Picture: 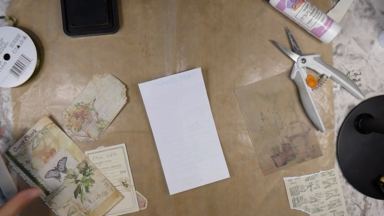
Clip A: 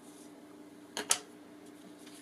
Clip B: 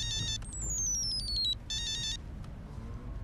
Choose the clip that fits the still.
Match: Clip A